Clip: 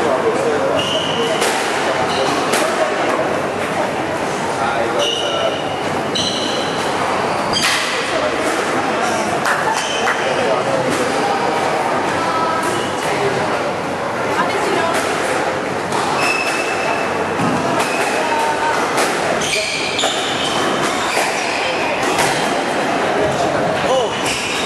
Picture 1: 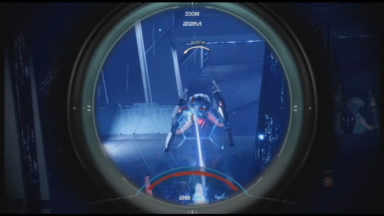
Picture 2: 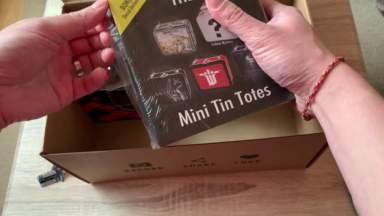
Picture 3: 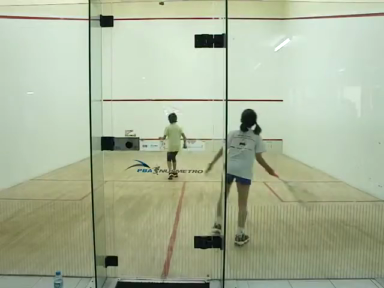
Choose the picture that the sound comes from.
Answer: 3